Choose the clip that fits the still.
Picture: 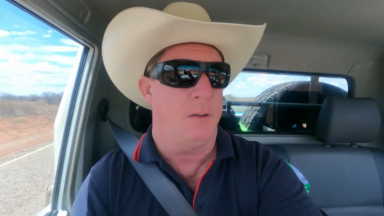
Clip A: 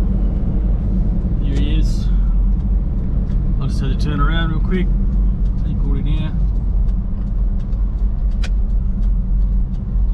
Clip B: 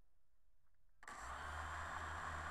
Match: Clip A